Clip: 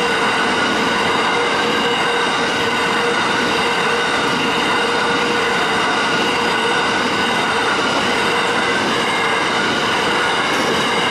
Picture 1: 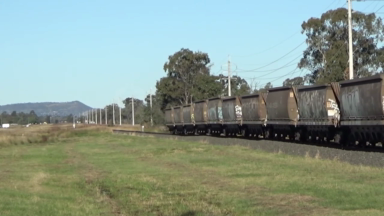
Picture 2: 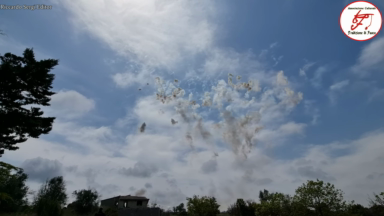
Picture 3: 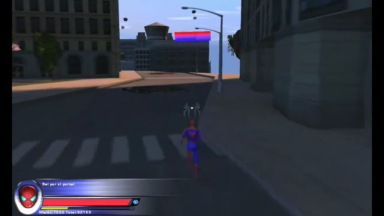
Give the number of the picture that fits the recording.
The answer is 1